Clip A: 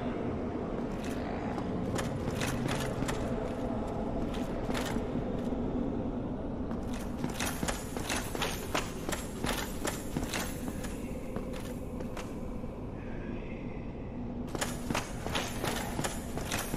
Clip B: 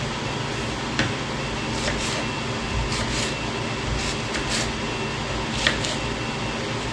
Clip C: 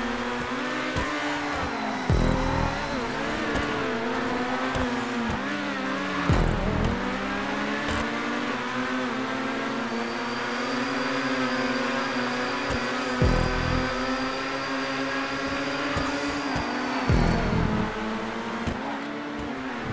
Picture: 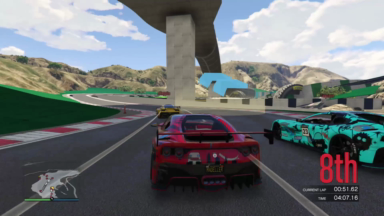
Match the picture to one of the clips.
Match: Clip C